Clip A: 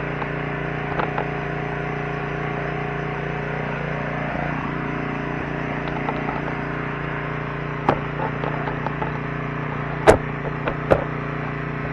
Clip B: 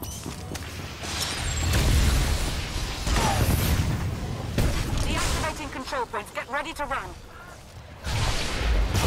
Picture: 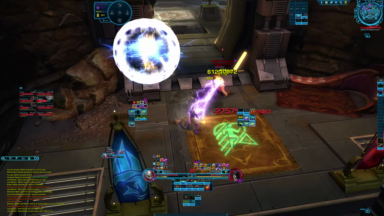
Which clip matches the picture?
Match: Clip B